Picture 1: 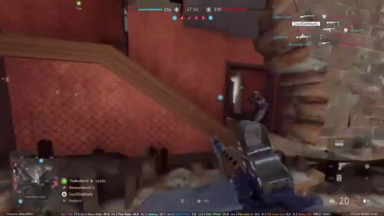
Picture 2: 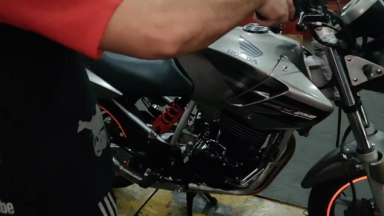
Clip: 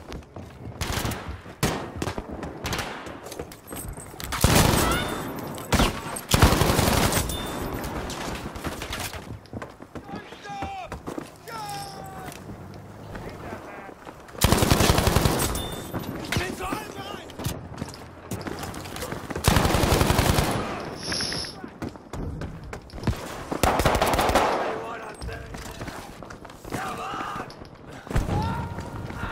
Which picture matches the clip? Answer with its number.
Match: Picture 1